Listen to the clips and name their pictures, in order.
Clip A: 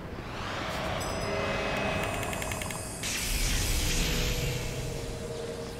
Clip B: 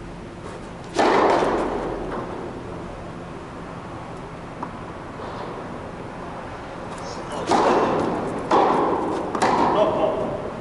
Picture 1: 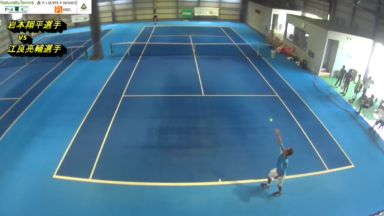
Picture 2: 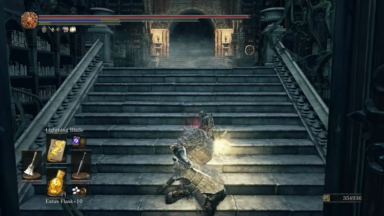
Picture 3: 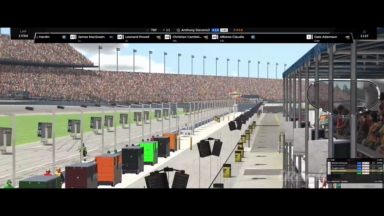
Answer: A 2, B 1